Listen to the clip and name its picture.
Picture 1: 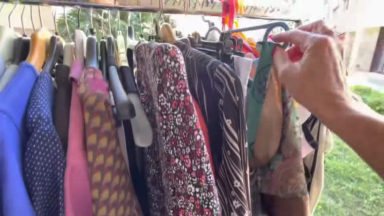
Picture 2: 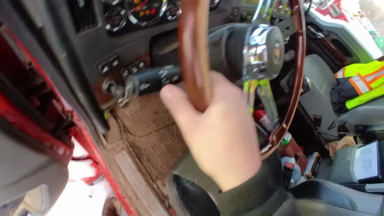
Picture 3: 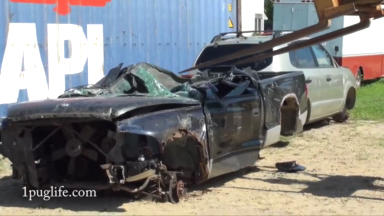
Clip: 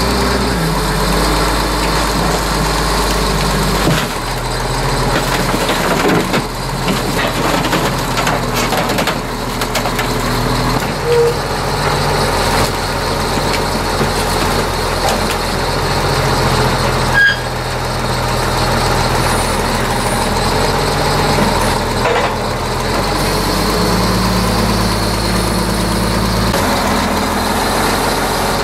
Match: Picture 3